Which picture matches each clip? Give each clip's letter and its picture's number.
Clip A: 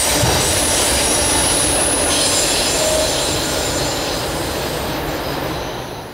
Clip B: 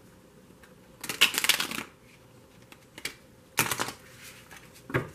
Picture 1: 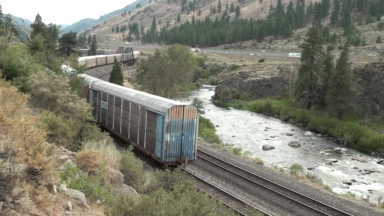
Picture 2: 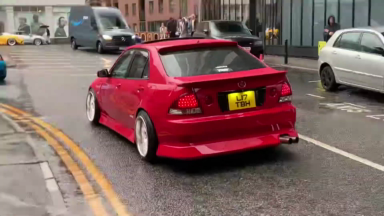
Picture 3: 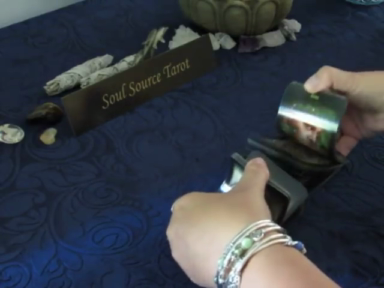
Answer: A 1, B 3